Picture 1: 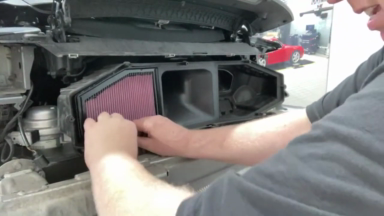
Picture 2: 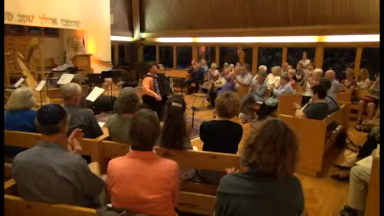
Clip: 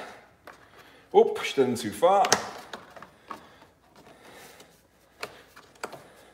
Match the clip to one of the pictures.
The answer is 1